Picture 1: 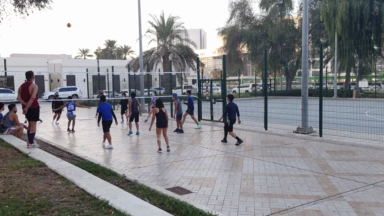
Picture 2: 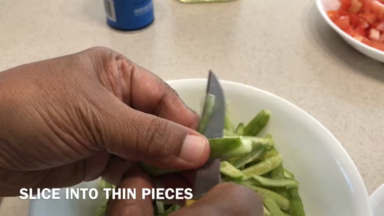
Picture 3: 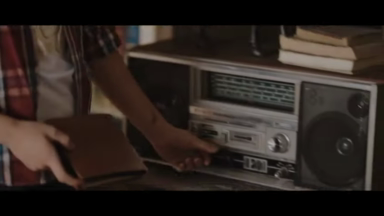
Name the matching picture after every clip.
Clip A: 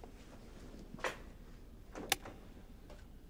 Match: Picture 3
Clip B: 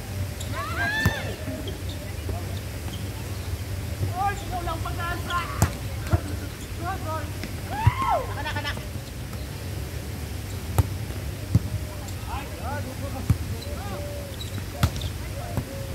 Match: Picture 1